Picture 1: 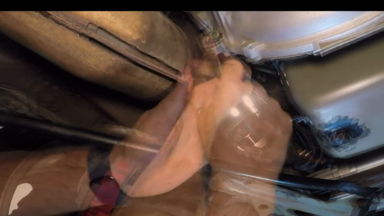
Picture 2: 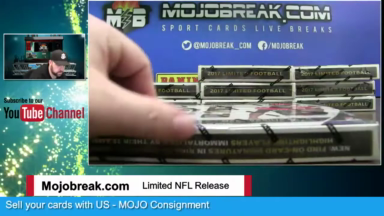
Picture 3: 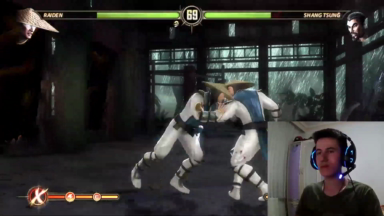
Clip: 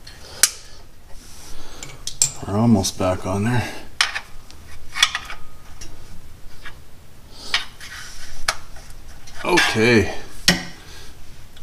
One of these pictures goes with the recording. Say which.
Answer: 1